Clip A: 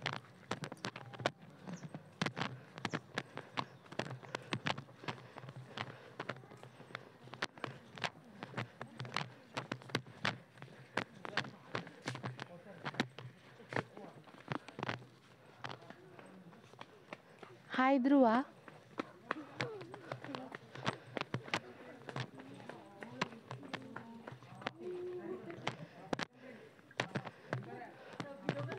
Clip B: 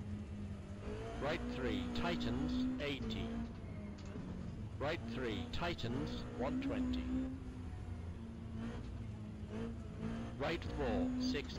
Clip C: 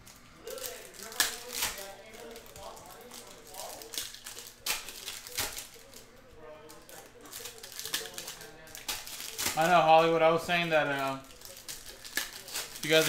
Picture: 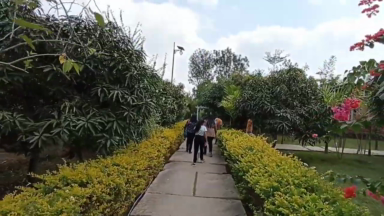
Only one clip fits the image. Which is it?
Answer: A